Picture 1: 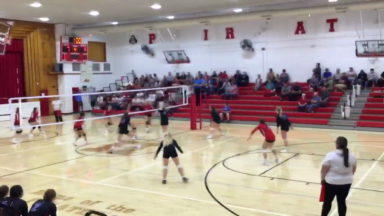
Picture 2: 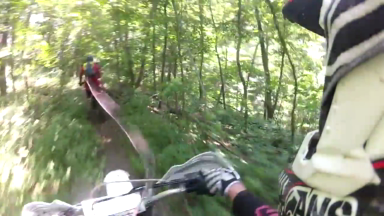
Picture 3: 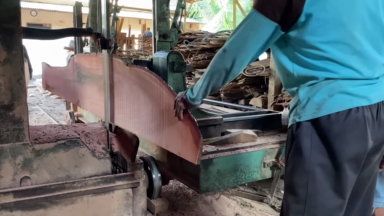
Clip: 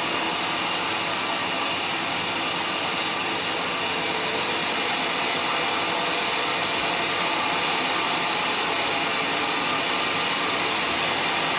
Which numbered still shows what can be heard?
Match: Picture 3